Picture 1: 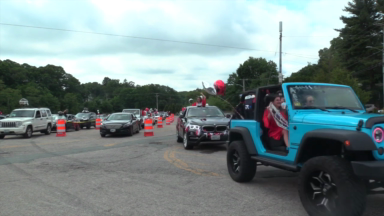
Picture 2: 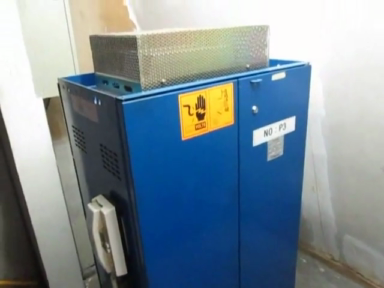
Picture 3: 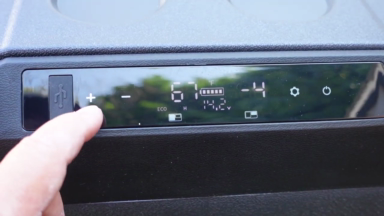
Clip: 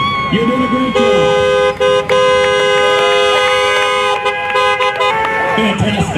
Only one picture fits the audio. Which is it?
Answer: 1